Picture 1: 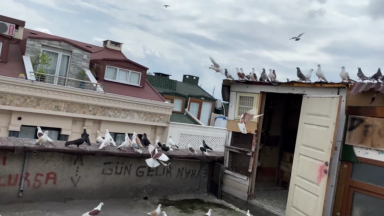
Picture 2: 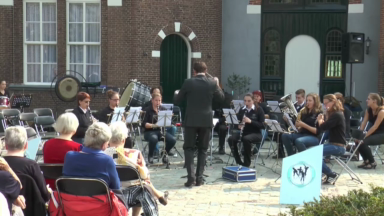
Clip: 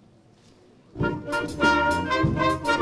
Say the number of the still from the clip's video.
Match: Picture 2